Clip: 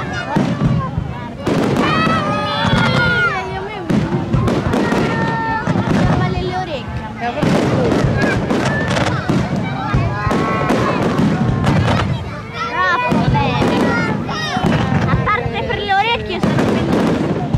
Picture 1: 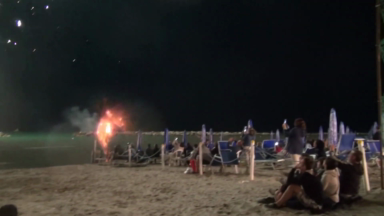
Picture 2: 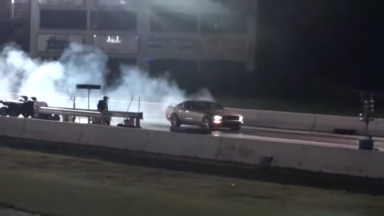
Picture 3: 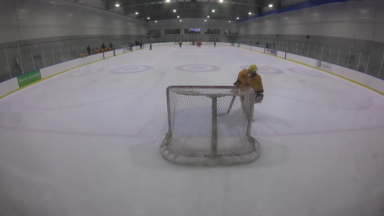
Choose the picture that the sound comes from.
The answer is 1